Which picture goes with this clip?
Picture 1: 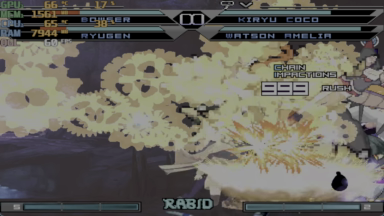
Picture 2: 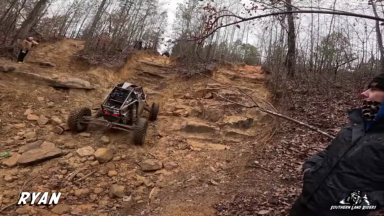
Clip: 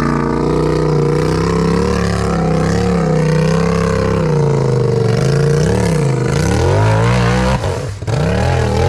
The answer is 2